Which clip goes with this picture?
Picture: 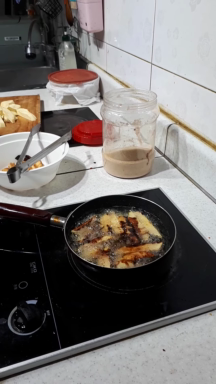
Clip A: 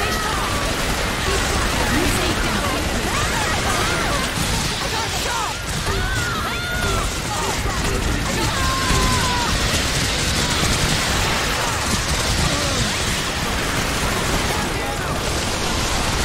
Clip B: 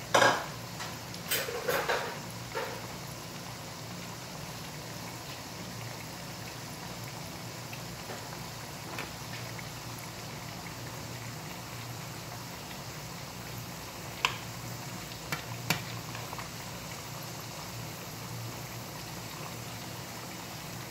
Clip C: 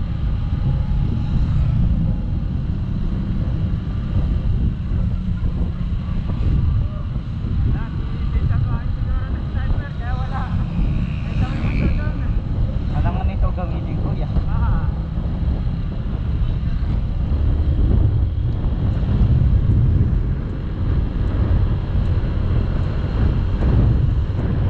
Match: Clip B